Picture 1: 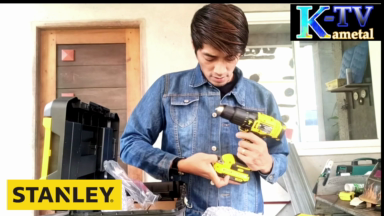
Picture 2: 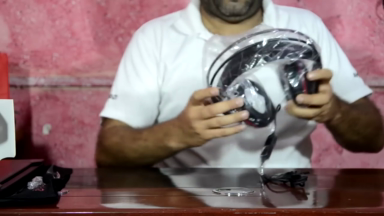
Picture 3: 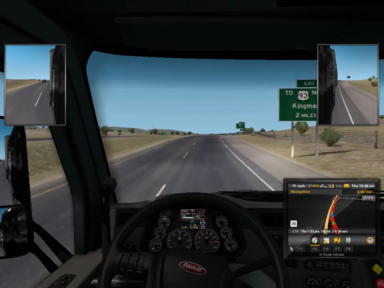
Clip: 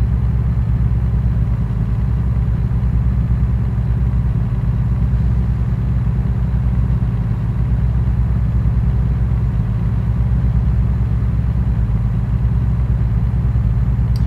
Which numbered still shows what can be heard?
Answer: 3